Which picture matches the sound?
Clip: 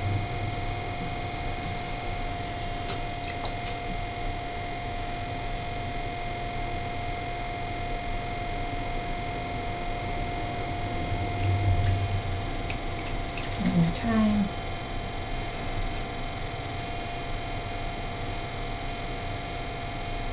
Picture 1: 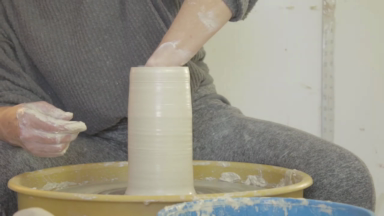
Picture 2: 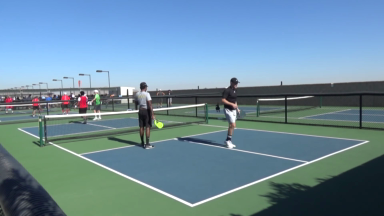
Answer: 1